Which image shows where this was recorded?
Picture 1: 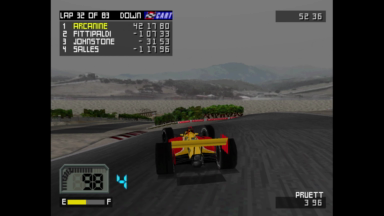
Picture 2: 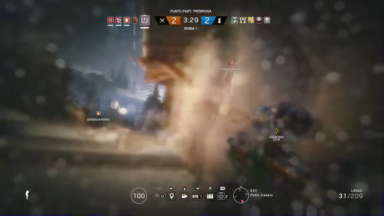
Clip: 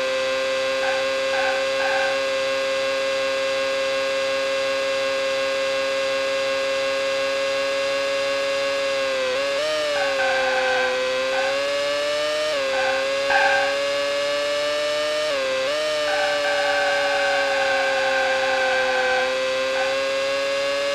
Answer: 1